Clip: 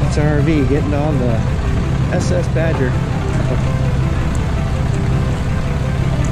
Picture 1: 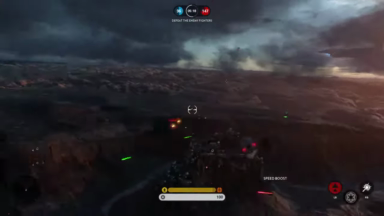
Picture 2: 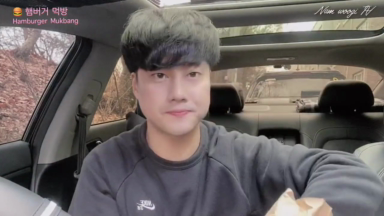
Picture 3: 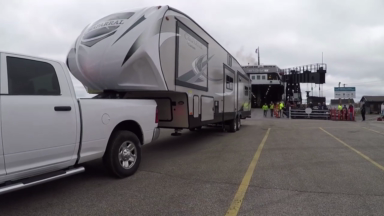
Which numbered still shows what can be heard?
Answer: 3